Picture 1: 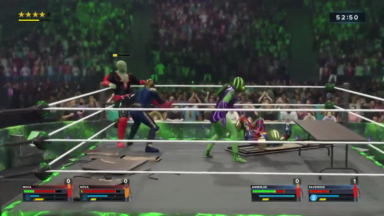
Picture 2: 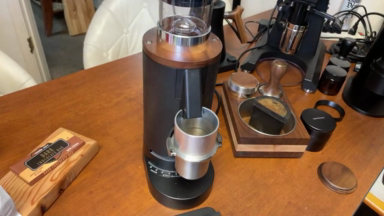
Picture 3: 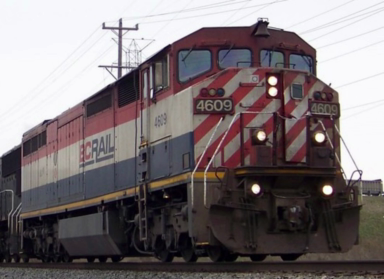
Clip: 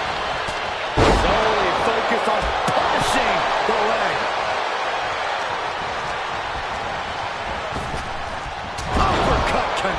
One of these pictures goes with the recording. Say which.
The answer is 1